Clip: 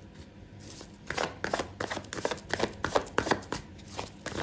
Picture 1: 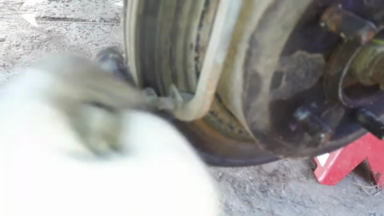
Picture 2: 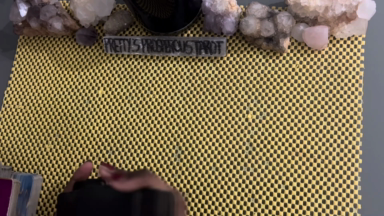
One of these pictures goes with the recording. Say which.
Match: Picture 2